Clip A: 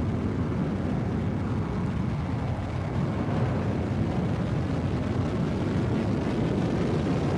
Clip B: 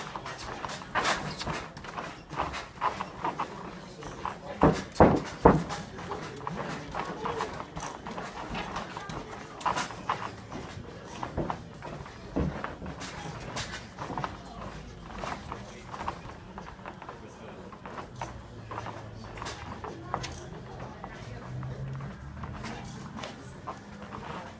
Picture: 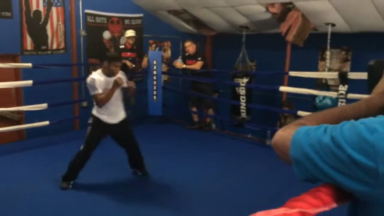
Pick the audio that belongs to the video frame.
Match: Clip B